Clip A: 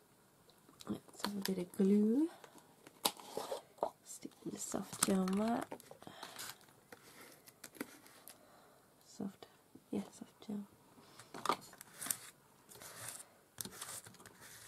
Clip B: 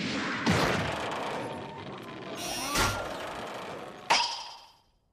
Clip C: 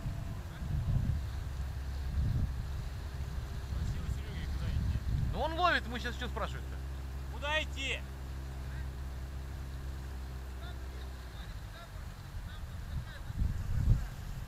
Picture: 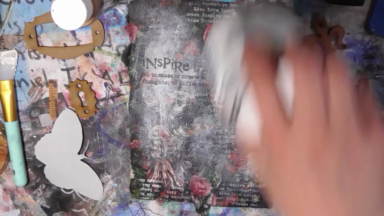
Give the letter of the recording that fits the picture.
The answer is A